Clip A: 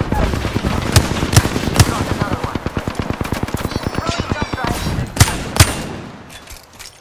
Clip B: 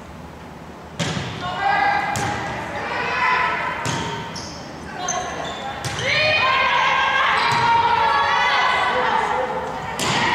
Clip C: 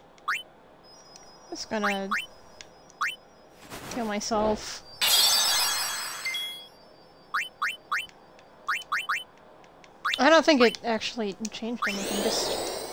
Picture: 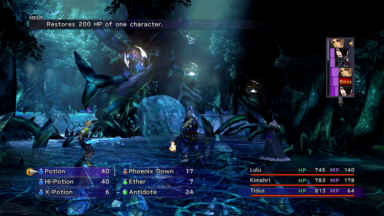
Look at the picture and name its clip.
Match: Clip C